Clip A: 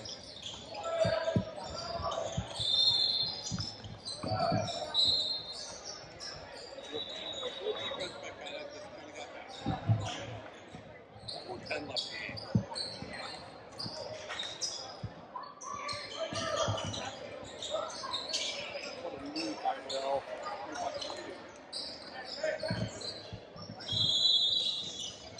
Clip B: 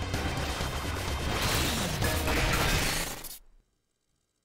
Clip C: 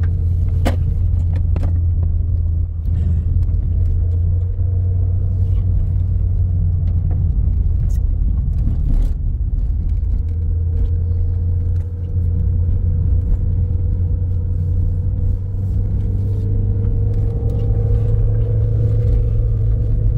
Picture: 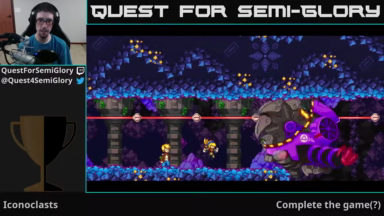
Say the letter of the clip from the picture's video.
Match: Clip B